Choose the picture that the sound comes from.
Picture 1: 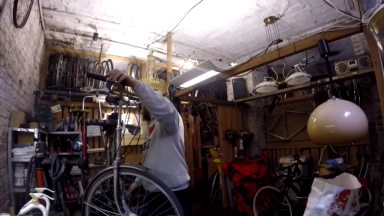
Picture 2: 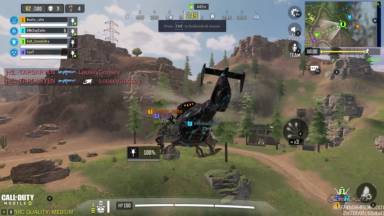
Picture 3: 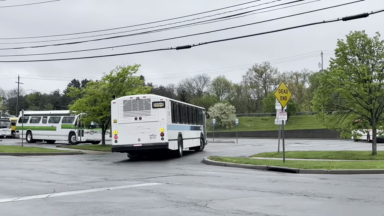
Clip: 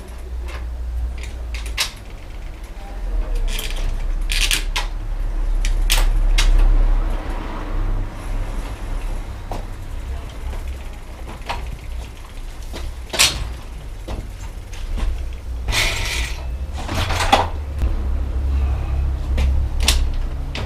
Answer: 1